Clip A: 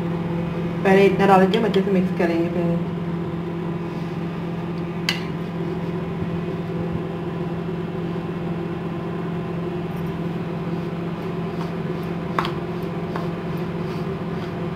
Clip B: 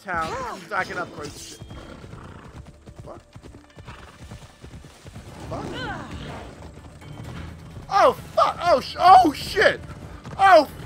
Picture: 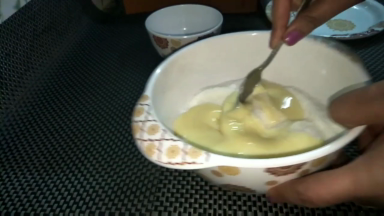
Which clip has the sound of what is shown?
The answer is A